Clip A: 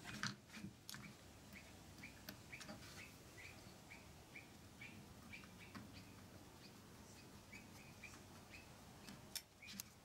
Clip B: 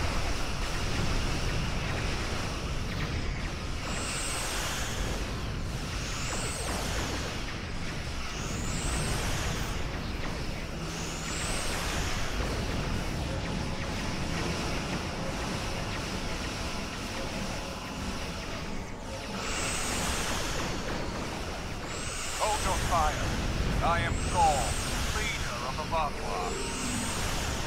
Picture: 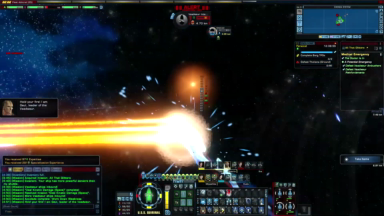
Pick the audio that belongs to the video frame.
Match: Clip B